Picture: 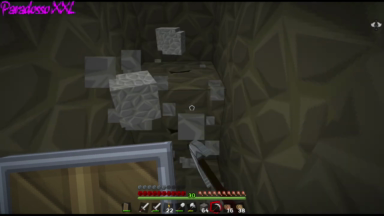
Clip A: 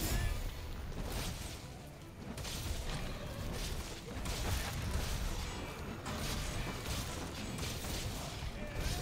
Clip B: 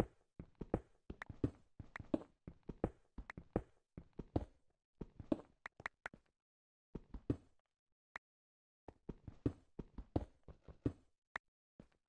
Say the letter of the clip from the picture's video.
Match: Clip B